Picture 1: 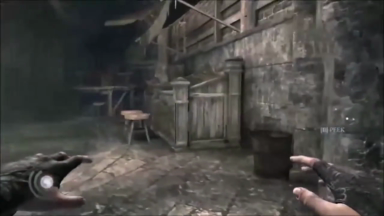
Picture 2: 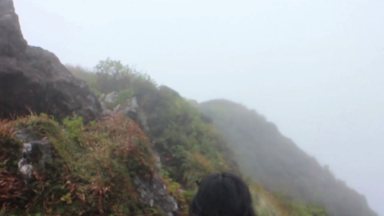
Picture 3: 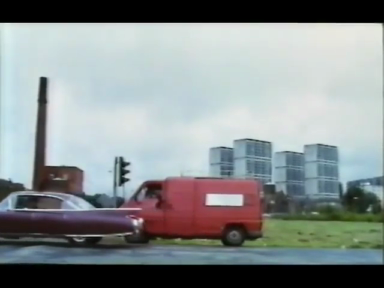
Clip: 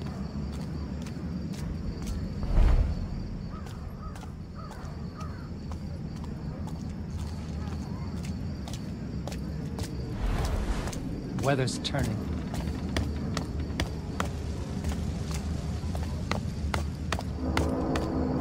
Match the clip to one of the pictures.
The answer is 1